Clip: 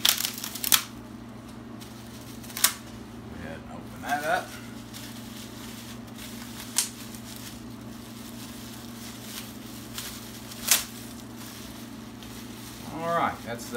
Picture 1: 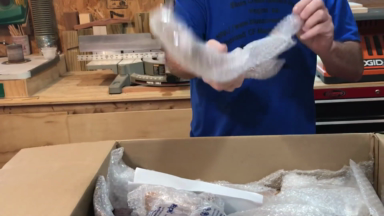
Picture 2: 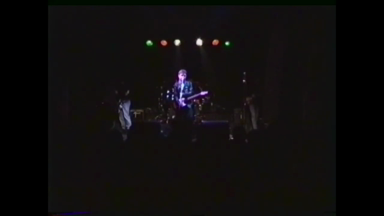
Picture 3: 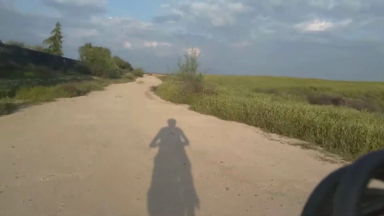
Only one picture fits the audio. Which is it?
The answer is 1